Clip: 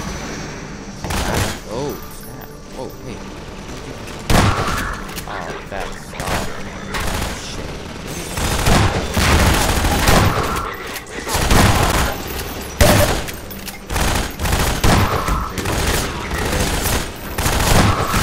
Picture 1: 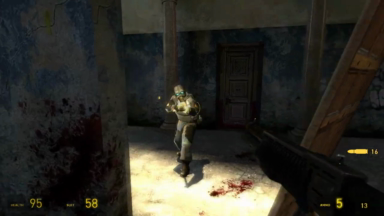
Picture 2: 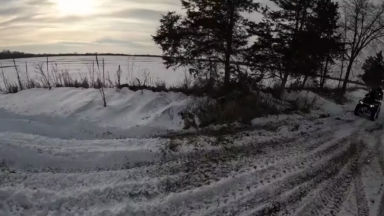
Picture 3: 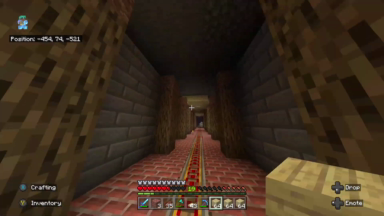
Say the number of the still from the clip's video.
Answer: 1